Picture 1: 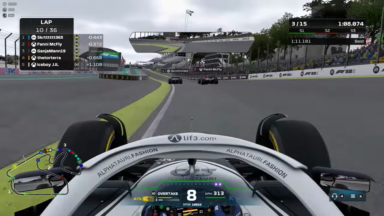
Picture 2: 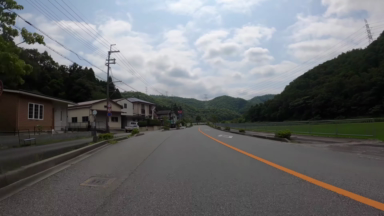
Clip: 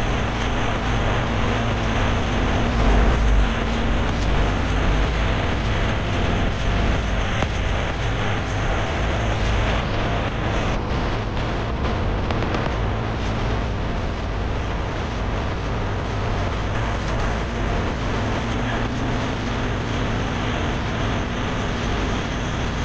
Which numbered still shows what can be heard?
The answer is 2